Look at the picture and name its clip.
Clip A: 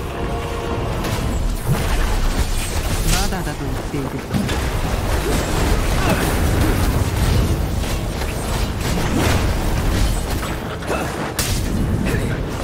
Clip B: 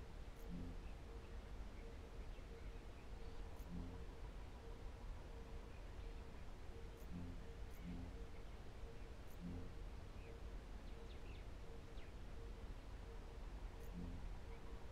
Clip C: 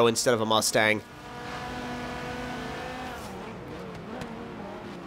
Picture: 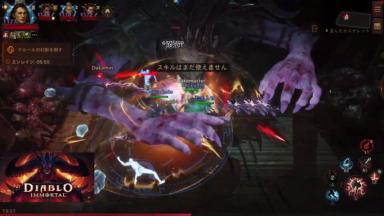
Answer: A